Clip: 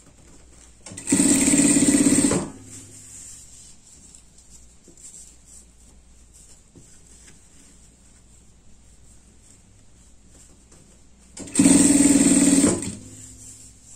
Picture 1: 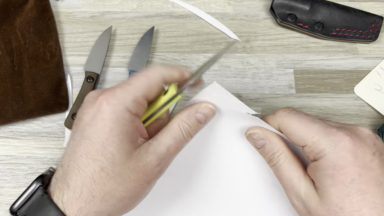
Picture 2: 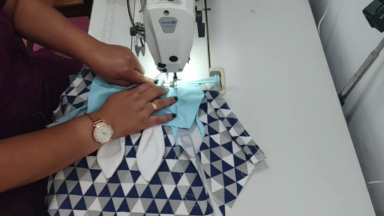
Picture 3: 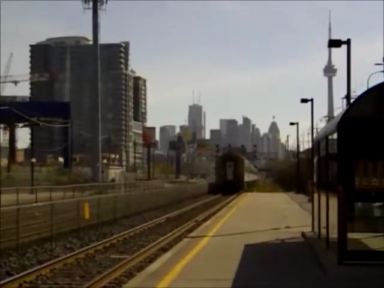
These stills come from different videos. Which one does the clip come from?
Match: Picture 2